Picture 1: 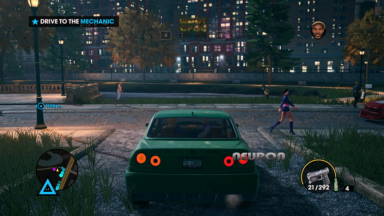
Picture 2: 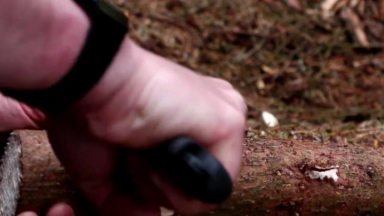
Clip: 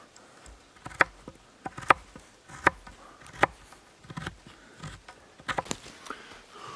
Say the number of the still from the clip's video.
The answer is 2